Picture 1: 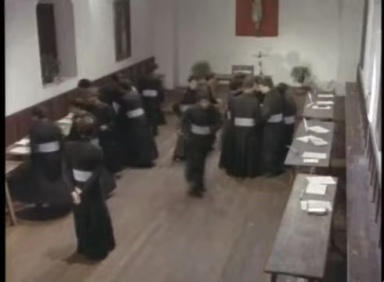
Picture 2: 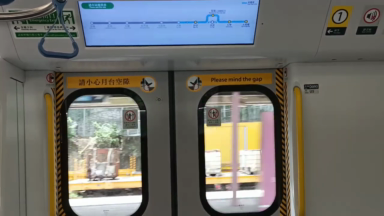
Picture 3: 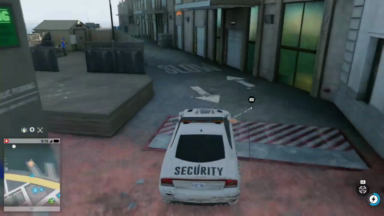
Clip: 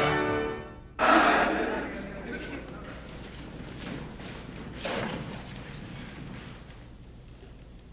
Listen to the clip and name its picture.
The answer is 1